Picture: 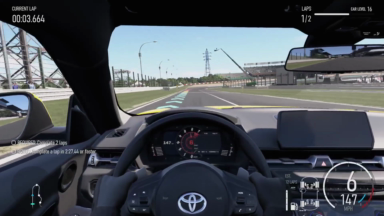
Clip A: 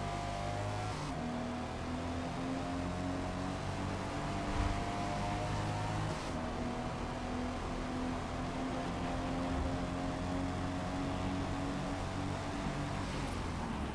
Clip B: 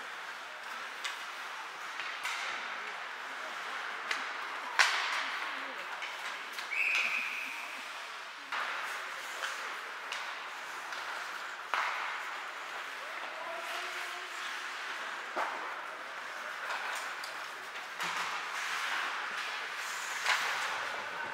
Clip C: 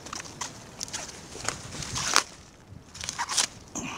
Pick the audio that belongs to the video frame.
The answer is A